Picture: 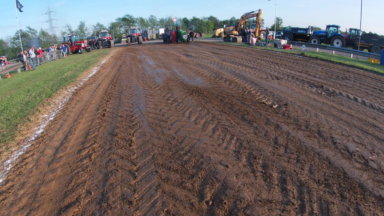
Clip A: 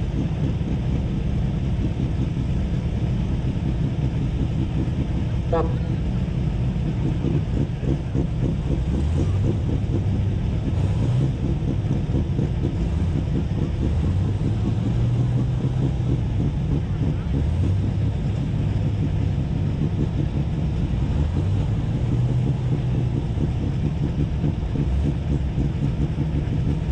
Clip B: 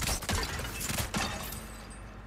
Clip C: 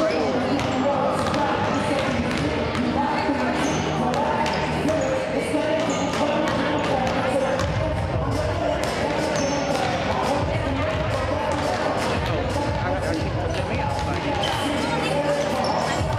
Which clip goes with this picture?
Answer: A